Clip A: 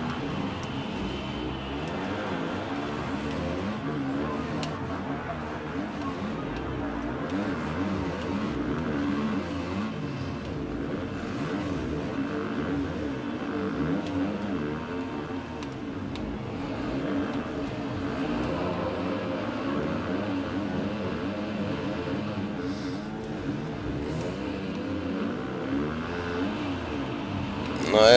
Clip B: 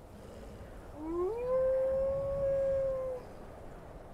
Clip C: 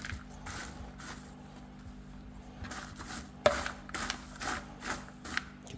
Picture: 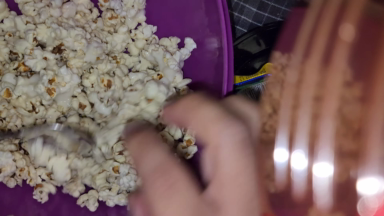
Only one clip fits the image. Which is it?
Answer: C